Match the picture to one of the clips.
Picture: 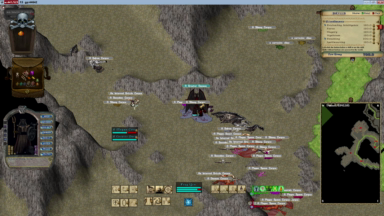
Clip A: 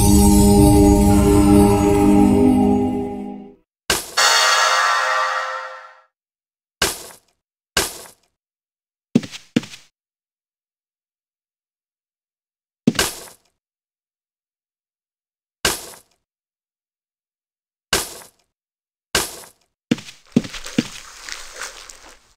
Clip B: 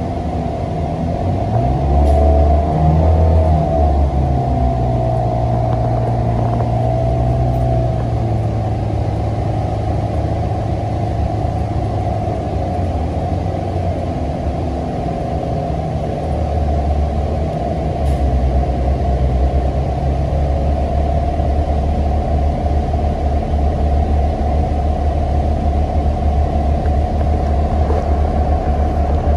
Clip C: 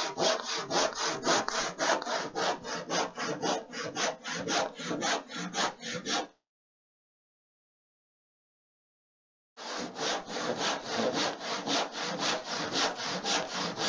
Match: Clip A